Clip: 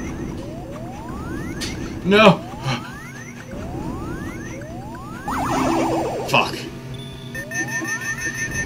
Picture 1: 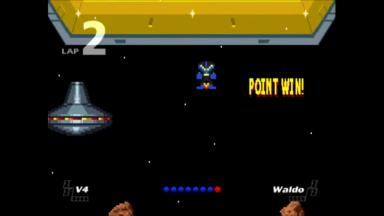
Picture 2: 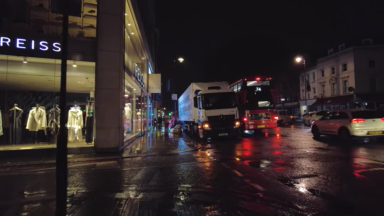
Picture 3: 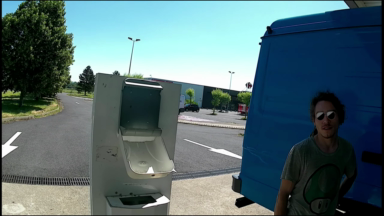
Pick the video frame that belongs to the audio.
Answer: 1